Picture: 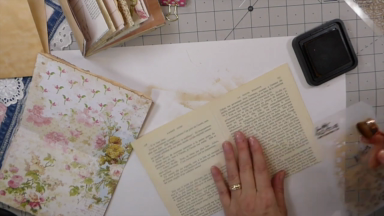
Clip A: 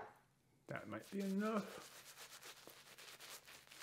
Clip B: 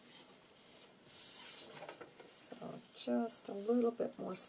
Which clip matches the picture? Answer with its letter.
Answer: B